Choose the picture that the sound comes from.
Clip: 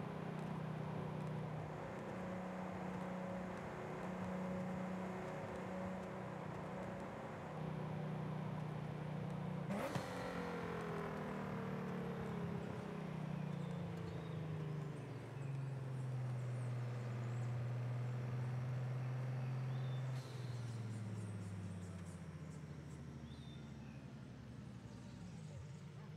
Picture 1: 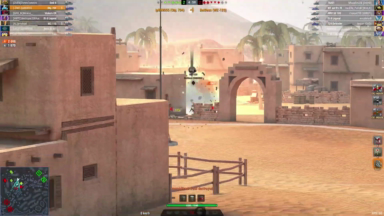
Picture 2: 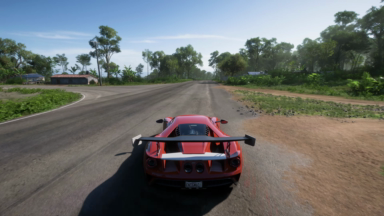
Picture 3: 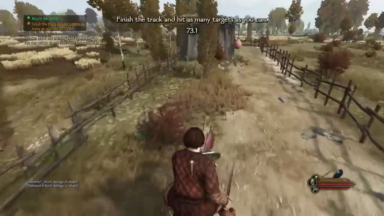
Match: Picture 2